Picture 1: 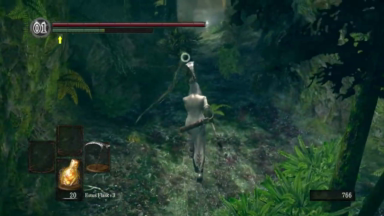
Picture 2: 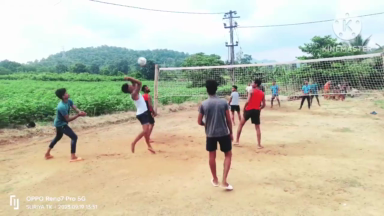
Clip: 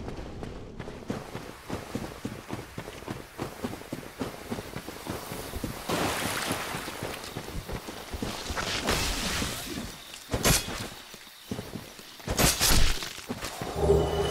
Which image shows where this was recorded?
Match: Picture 1